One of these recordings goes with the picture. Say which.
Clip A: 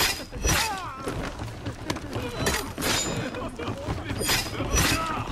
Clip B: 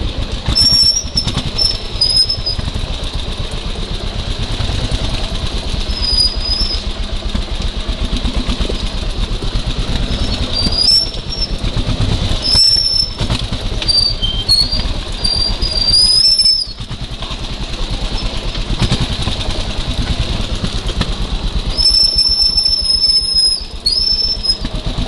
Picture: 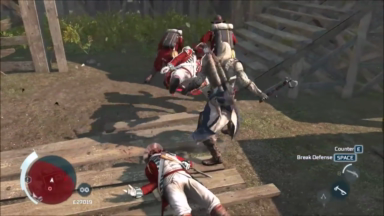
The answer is A